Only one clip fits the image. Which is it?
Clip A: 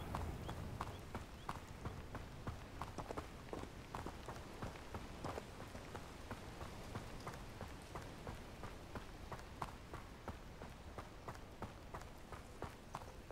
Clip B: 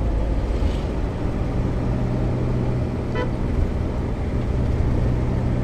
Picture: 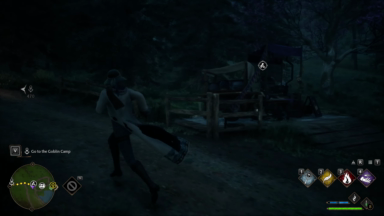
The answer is A